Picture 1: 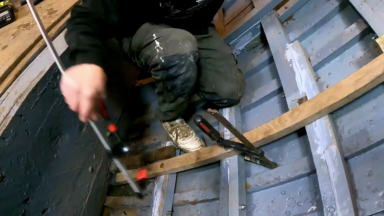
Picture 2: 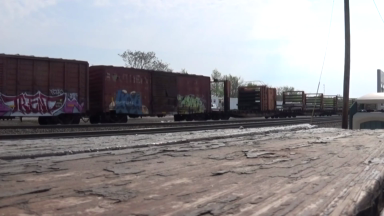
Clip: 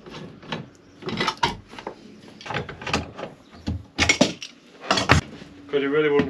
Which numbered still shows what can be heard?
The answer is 1